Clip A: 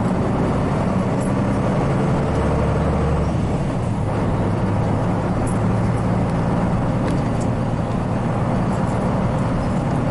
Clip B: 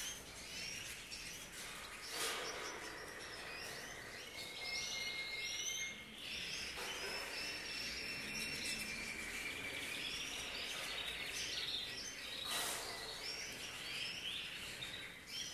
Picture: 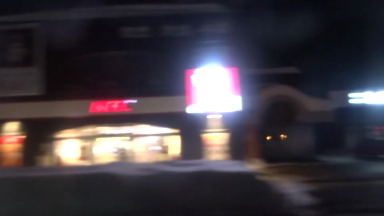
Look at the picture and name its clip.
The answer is A